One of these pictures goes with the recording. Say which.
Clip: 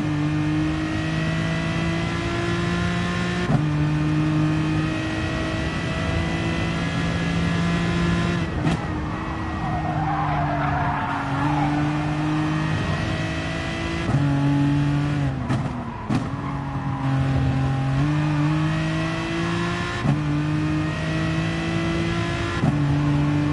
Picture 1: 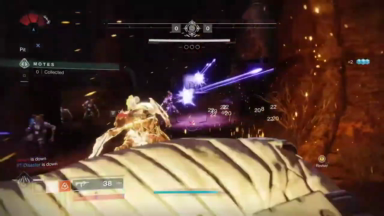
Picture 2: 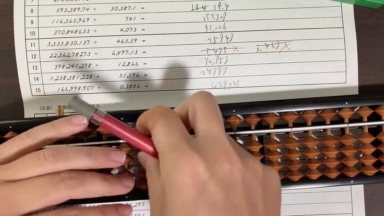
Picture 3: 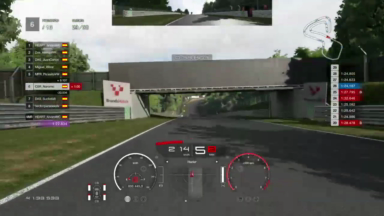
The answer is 3